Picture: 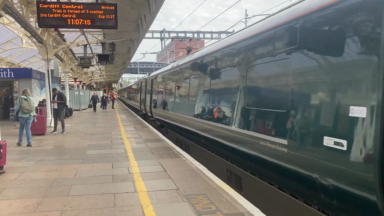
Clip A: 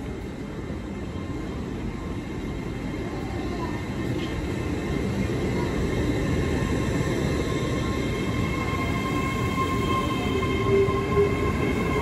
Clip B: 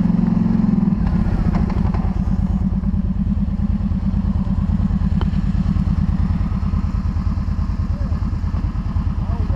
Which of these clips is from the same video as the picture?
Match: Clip A